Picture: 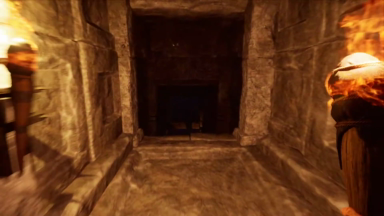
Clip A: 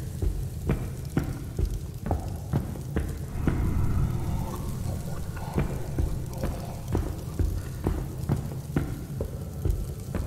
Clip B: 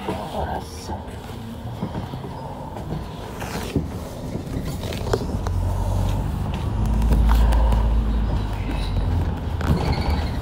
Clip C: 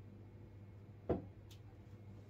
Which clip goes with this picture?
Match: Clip A